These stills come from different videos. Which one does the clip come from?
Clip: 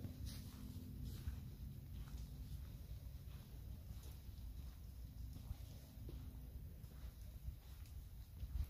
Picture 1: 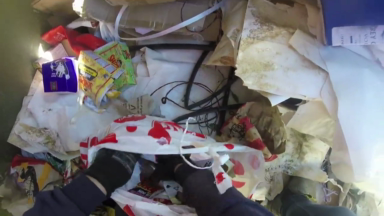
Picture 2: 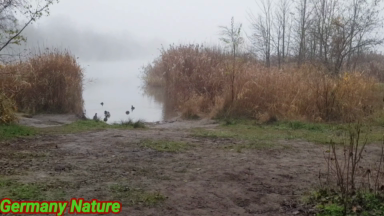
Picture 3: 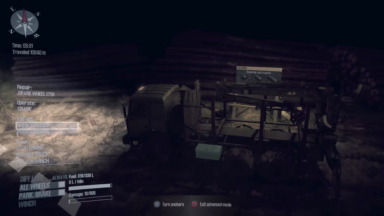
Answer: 2